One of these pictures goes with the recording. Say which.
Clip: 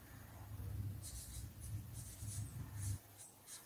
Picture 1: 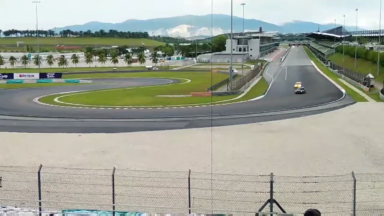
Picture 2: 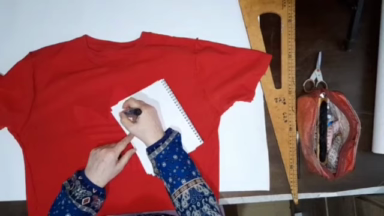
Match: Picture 2